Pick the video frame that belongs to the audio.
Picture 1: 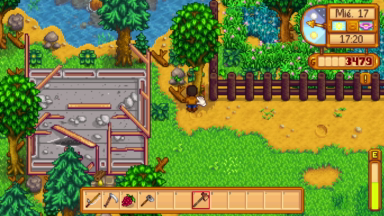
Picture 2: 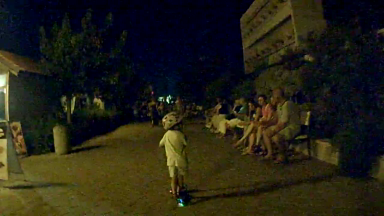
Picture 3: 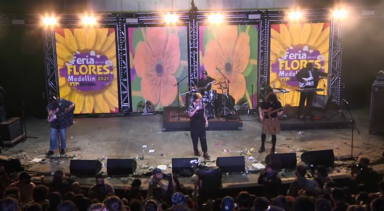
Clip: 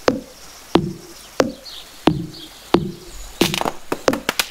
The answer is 1